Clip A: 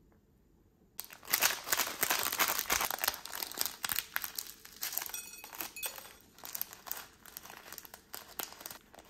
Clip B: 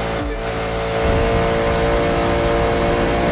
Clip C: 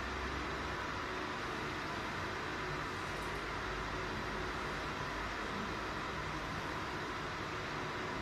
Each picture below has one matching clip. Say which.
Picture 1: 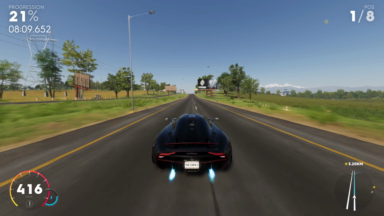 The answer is B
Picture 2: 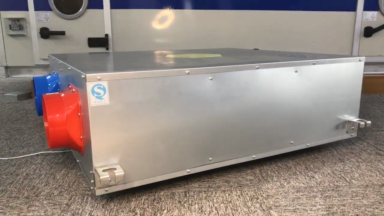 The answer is C